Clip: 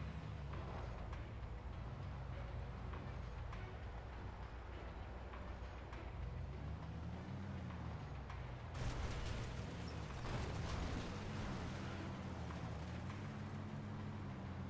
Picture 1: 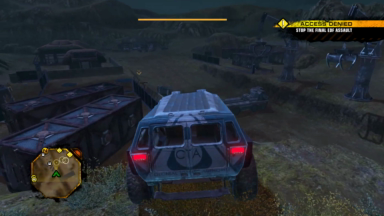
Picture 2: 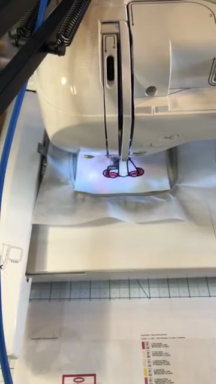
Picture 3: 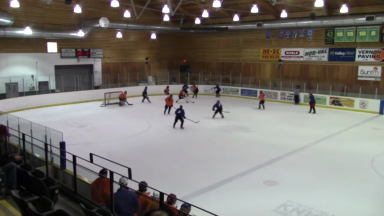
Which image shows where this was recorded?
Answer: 1